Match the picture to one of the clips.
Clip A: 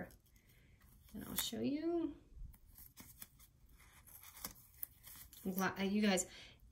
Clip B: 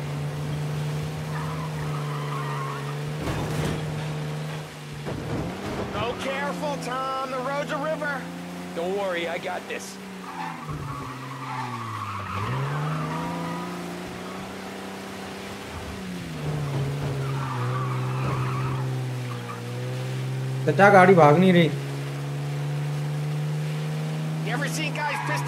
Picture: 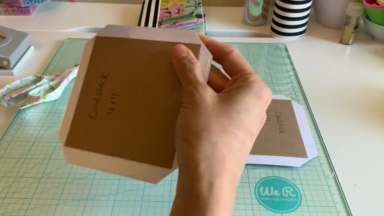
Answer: A